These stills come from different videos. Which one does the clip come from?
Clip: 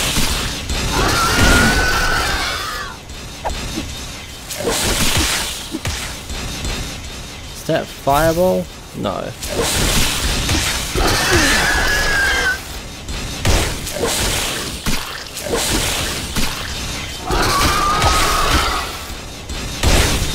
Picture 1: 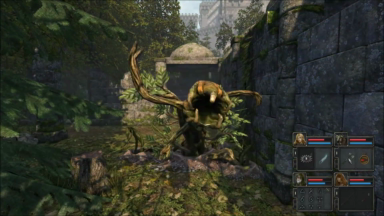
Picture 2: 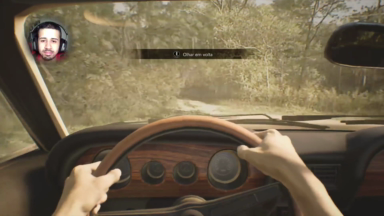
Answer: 1